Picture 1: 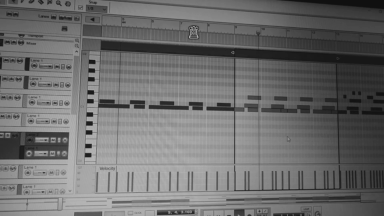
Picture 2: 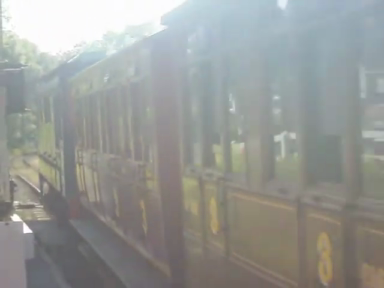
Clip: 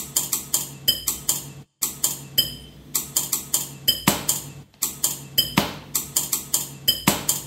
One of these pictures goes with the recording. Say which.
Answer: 1